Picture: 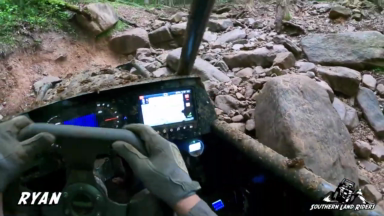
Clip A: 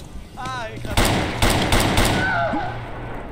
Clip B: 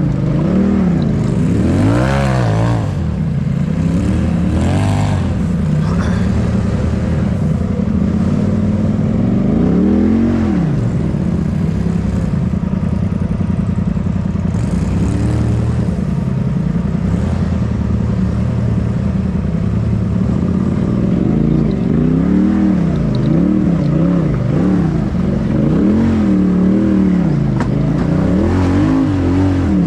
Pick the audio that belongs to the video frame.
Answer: B